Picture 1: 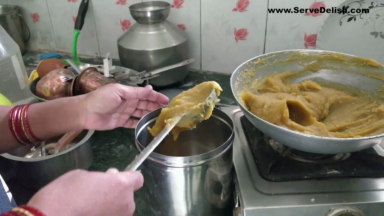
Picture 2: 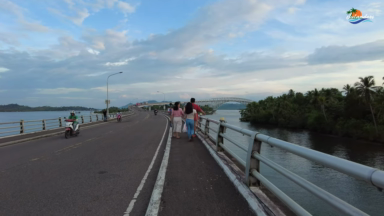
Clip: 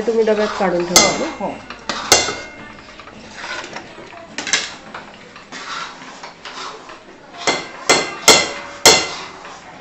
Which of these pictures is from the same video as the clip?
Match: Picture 1